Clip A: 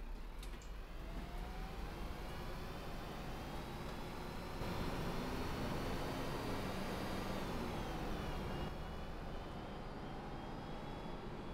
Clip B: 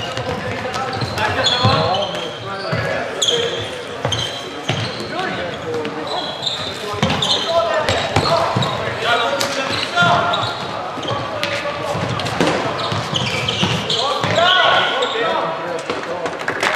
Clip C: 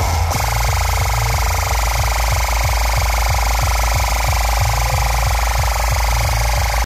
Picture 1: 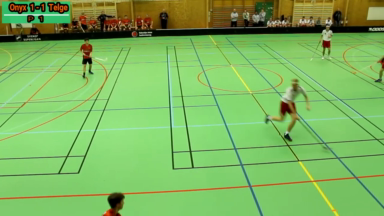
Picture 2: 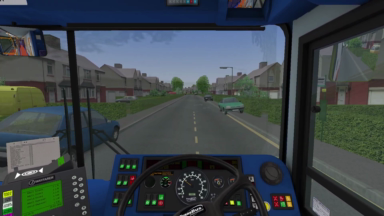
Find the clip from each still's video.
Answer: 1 B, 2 A